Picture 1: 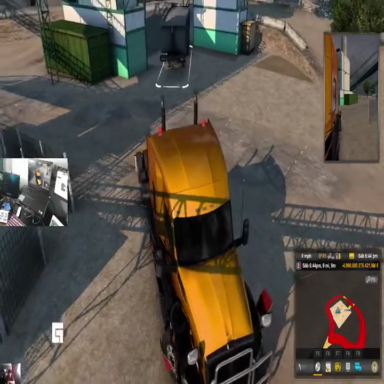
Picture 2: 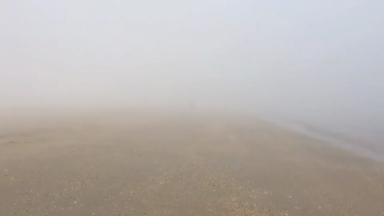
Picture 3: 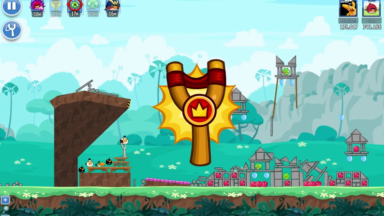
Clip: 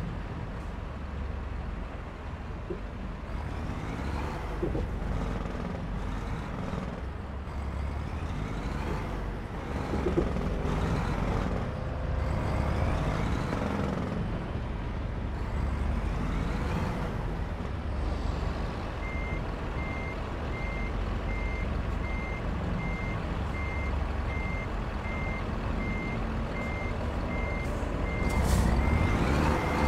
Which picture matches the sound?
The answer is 1